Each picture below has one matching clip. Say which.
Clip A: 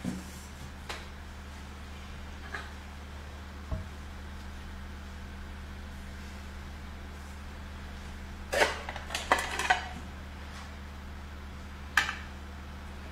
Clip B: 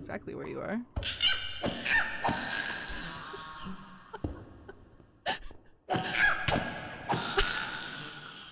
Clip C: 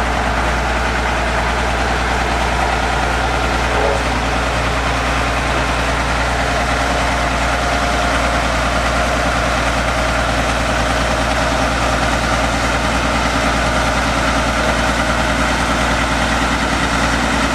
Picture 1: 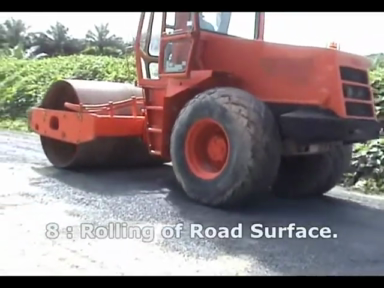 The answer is C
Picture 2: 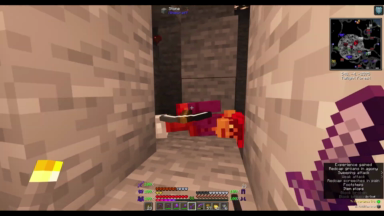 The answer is B